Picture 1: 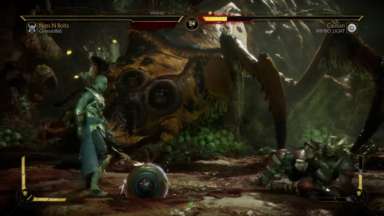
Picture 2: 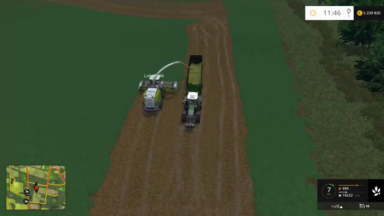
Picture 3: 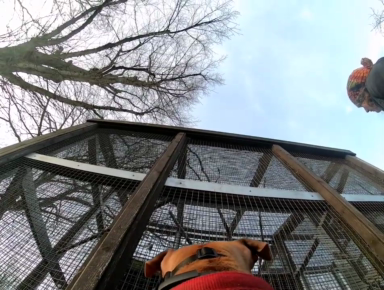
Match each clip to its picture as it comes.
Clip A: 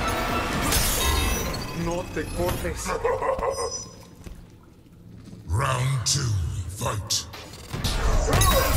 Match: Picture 1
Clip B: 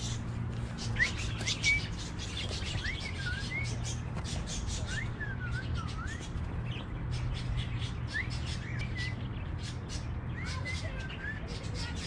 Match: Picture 3